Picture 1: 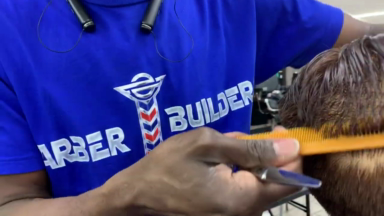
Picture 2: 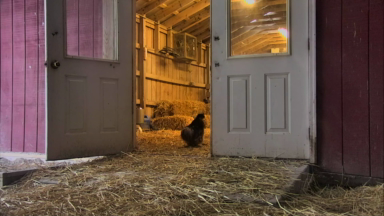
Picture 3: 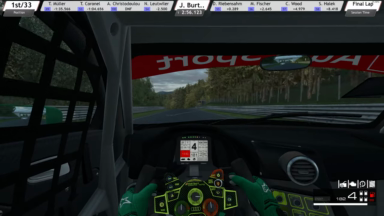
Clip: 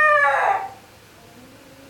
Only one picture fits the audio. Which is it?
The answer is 2